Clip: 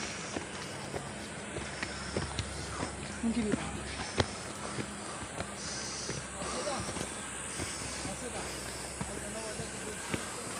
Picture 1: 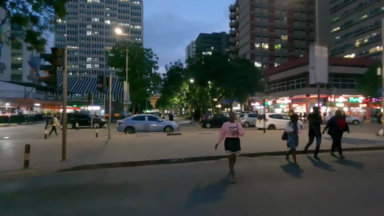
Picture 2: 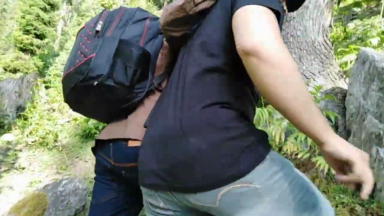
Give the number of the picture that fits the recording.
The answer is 2